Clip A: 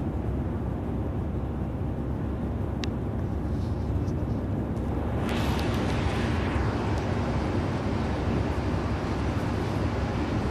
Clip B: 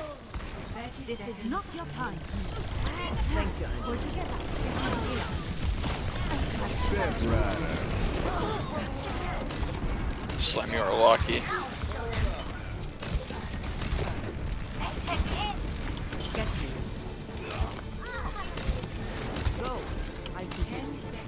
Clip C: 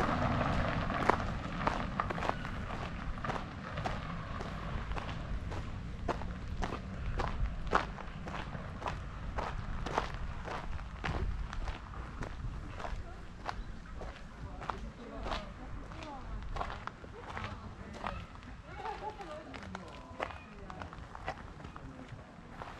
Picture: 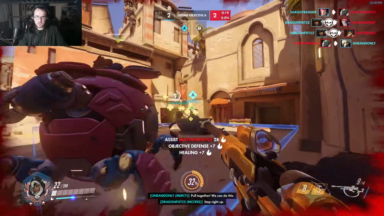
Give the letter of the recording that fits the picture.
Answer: B